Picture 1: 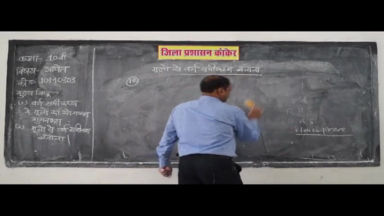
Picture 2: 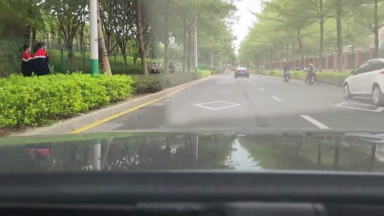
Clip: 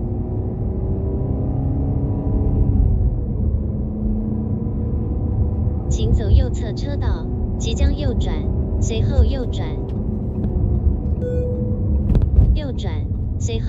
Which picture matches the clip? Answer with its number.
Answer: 2